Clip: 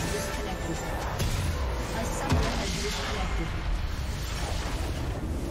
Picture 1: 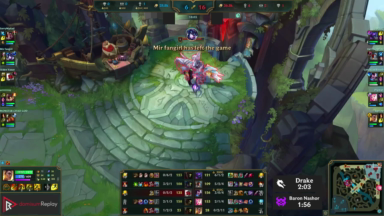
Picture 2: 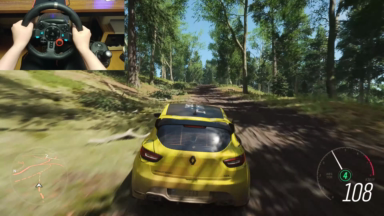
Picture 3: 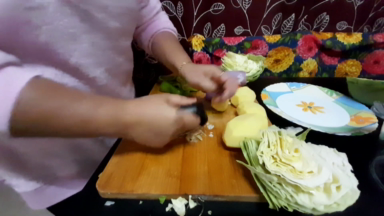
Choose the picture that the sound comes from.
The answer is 1